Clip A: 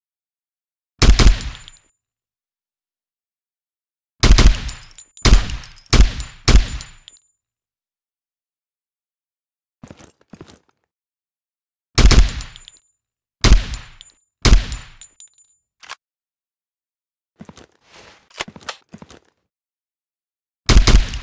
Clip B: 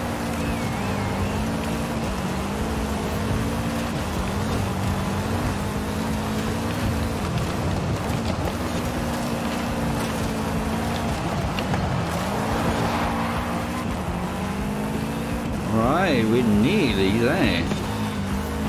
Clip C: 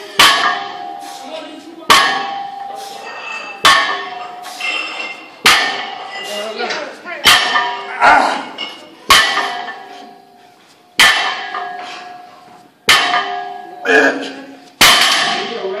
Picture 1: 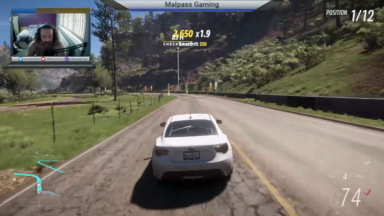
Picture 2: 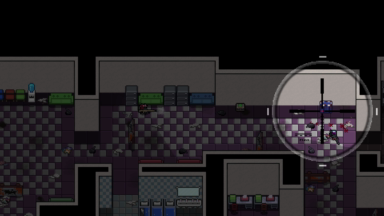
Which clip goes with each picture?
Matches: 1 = B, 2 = A